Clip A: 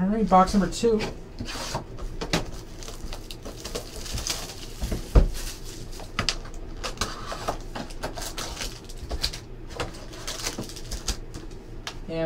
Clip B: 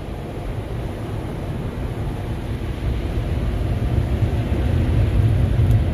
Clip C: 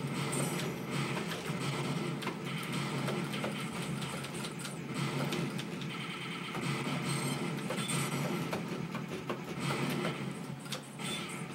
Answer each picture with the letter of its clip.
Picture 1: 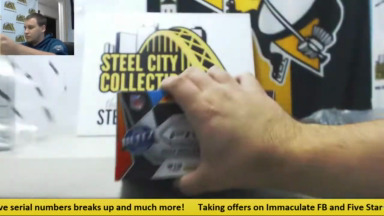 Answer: A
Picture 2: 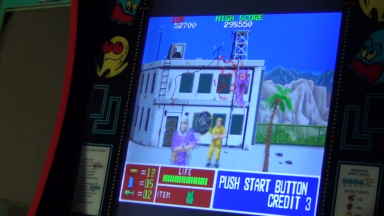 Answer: C